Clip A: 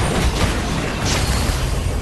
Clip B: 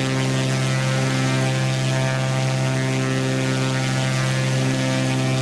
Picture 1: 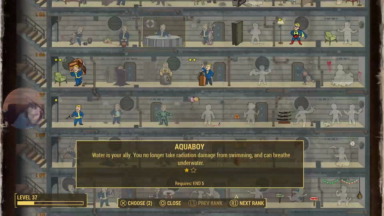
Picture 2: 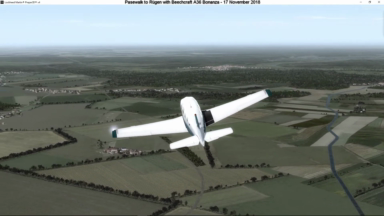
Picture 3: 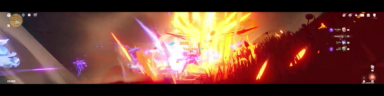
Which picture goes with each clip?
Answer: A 3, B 2